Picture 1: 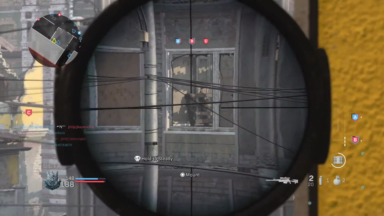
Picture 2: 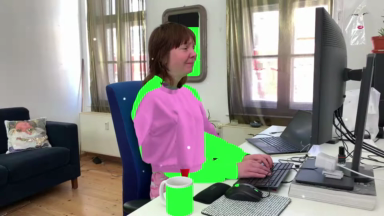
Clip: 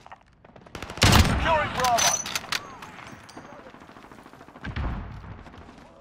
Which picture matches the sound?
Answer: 1